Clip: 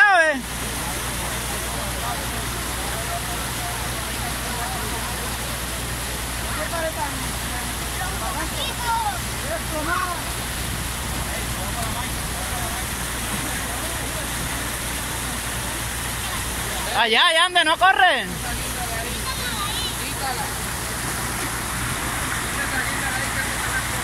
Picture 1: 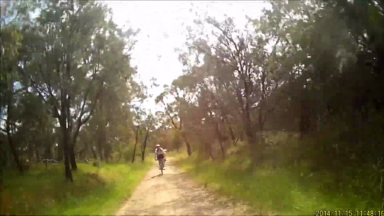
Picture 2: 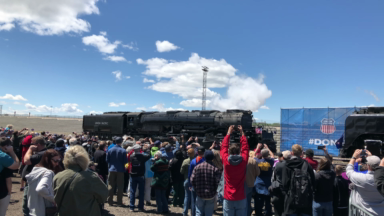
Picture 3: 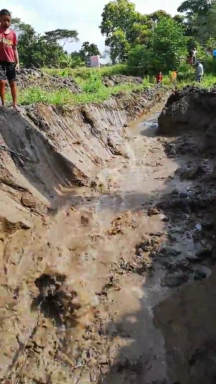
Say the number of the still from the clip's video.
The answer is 3